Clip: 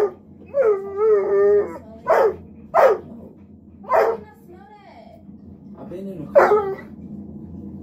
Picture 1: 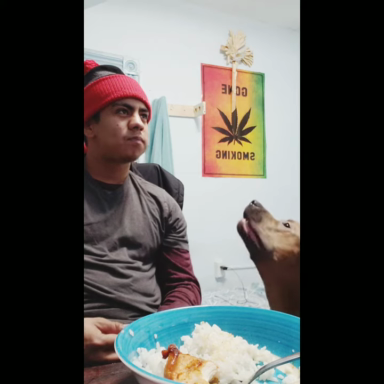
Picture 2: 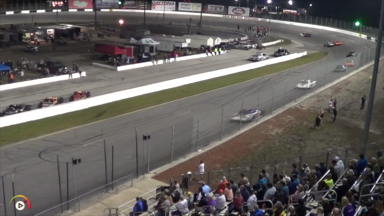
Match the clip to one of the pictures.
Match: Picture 1